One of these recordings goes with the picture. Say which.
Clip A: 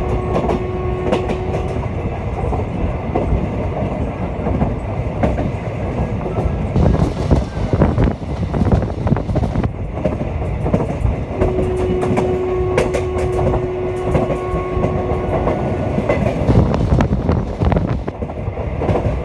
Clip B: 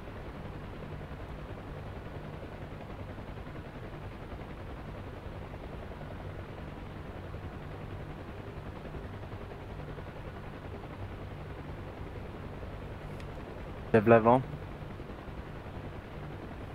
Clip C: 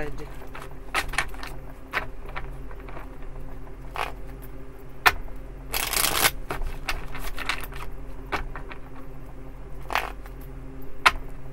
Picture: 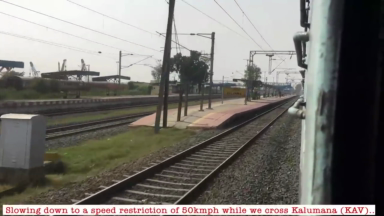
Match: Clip A